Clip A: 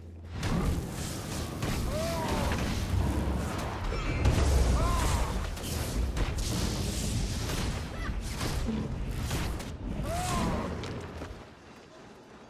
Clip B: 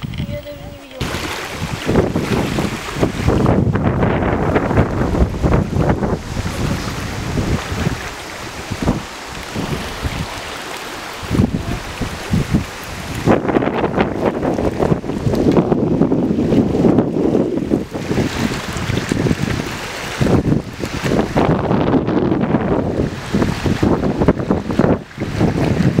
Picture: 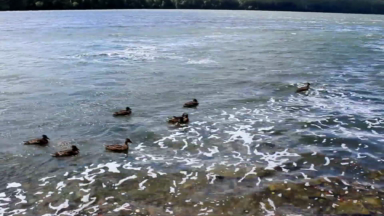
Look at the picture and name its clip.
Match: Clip B